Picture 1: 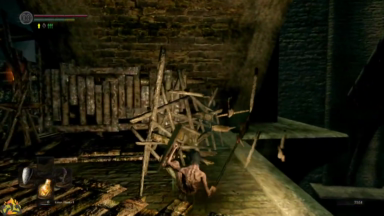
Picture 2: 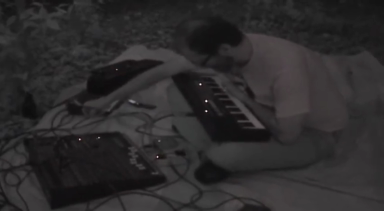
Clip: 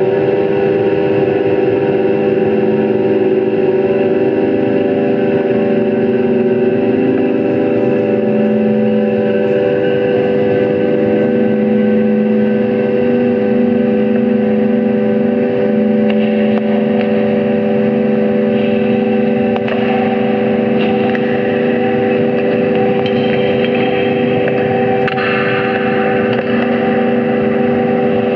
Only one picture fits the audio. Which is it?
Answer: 2